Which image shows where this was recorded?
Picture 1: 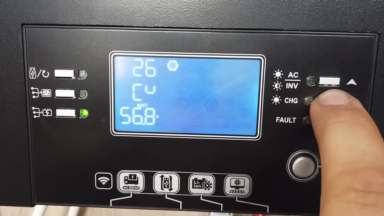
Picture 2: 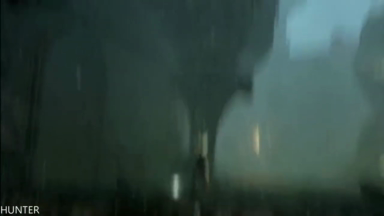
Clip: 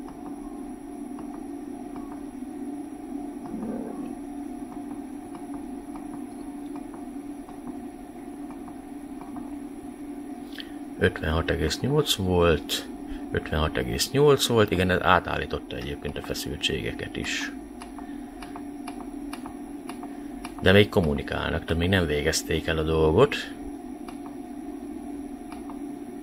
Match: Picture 1